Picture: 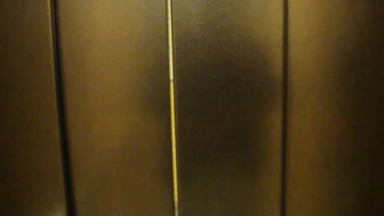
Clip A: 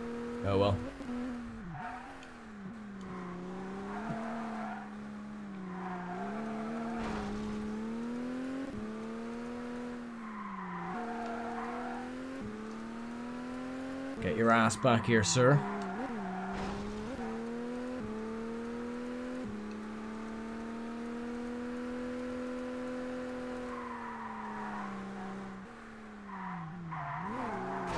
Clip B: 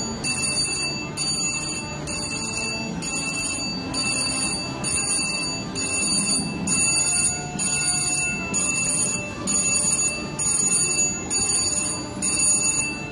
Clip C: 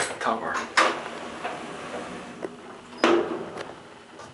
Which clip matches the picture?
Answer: C